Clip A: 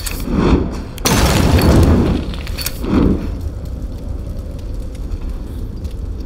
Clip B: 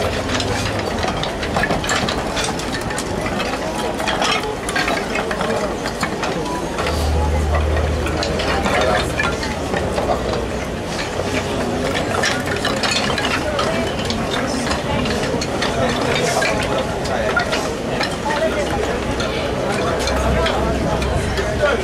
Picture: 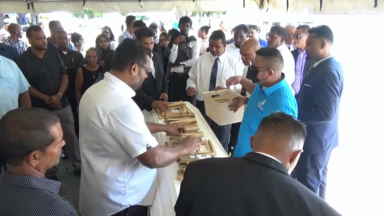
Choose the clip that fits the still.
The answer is B